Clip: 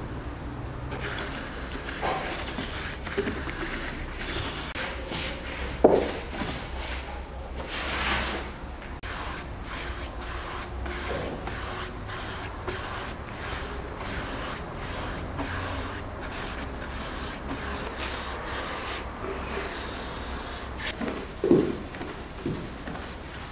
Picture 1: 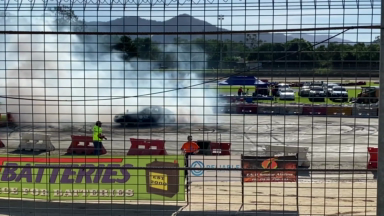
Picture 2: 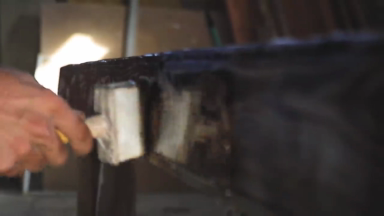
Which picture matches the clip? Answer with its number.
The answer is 2